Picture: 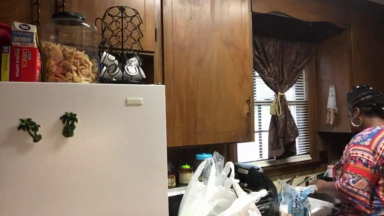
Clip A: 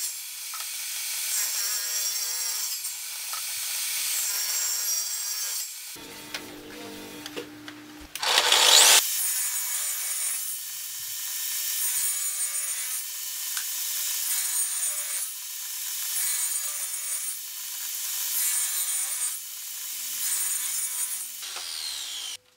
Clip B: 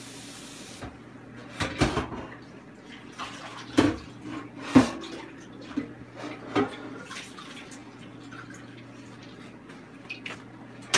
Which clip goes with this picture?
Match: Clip B